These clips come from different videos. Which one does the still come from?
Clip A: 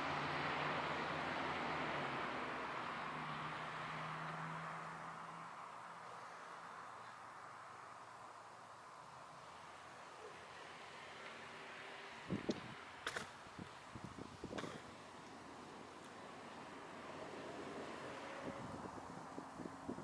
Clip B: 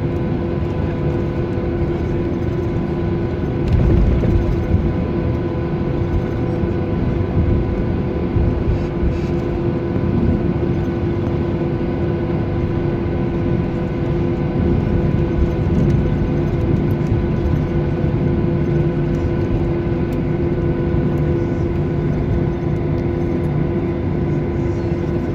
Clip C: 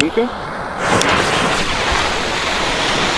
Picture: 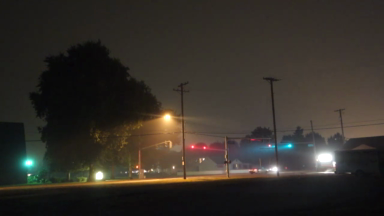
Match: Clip A